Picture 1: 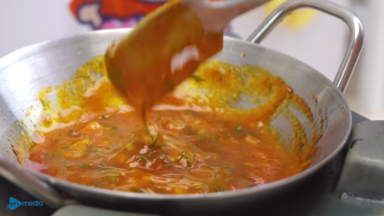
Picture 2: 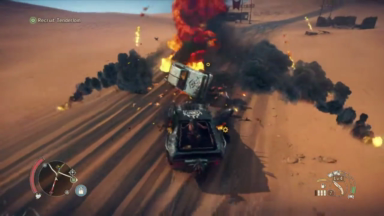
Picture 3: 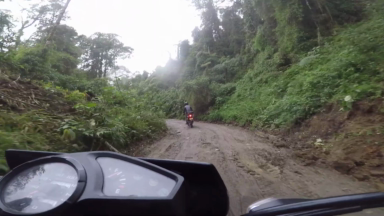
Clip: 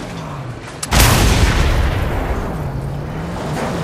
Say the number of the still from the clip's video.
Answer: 2